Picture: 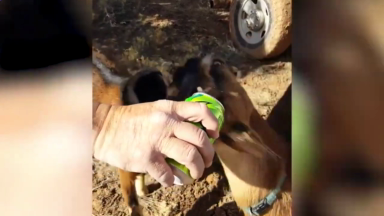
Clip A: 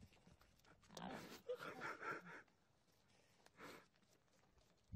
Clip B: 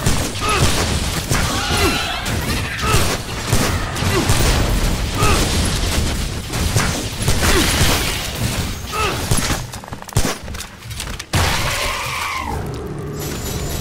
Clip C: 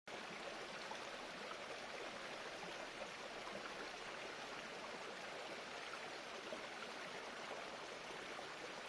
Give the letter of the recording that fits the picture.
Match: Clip A